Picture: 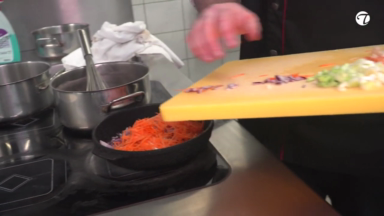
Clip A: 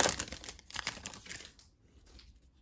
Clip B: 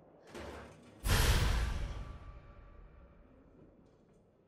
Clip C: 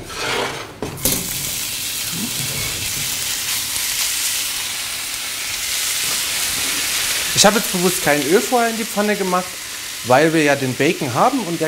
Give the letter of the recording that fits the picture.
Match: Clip C